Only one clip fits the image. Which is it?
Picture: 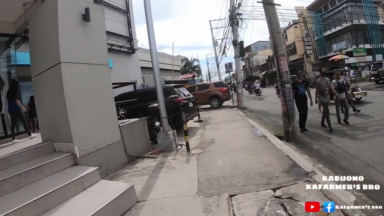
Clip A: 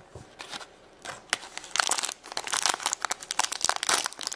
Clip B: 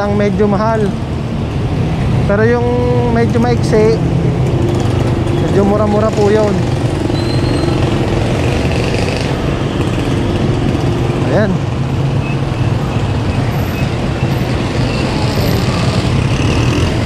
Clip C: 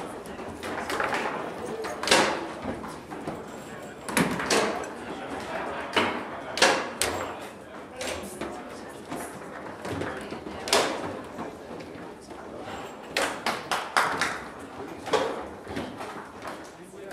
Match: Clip B